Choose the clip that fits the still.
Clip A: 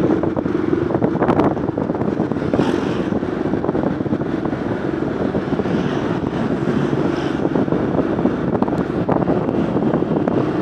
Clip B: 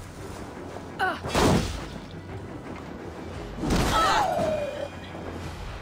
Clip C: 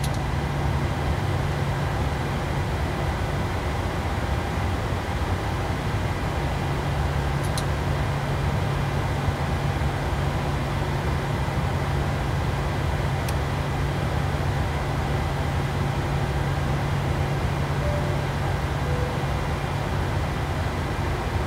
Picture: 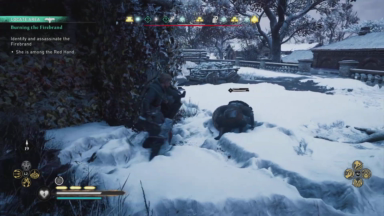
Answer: B